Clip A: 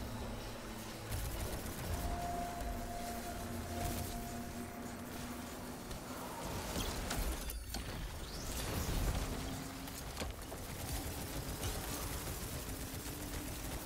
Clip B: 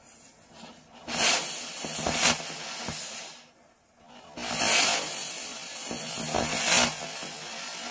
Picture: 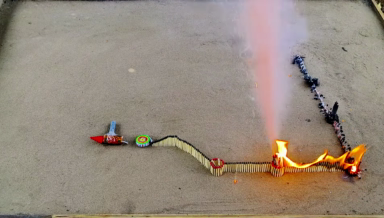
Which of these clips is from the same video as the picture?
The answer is B